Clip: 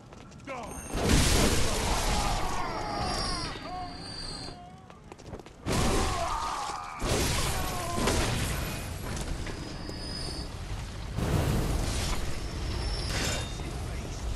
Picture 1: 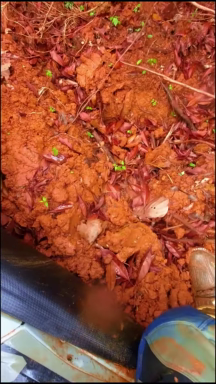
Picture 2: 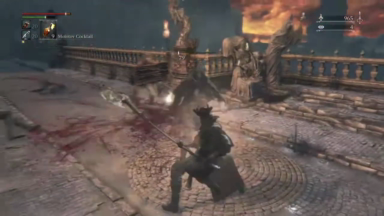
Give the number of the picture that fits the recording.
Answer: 2